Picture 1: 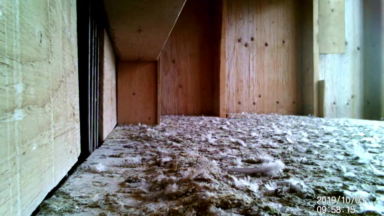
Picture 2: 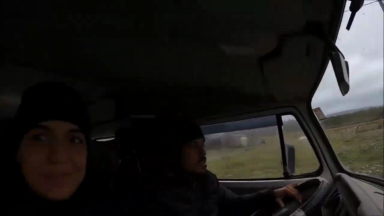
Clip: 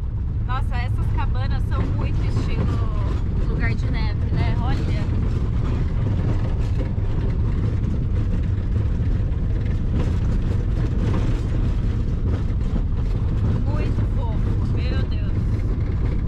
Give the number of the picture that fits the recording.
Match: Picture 2